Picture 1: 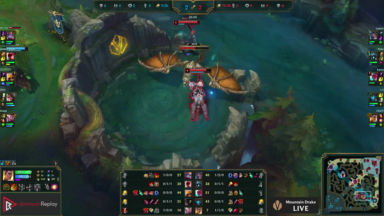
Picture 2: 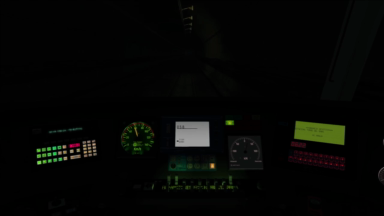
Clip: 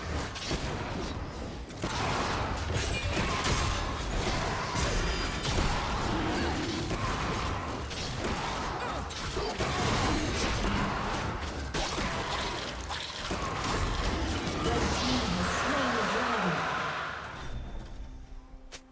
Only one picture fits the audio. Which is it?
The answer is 1